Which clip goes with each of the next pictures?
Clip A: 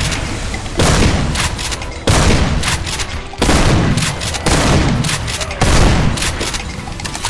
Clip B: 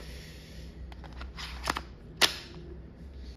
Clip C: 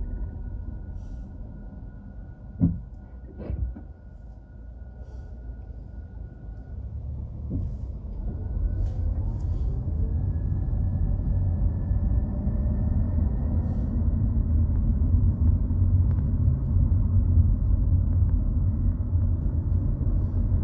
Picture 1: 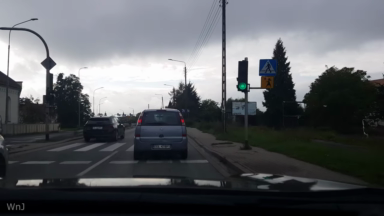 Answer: C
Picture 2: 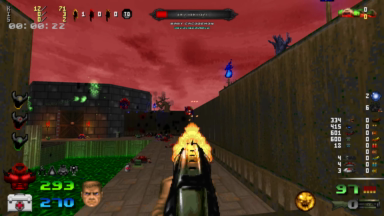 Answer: A